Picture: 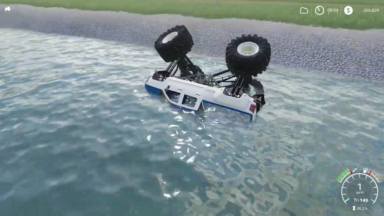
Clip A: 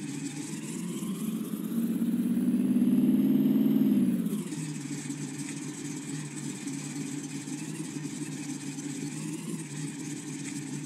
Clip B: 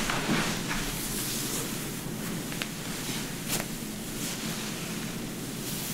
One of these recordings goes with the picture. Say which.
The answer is A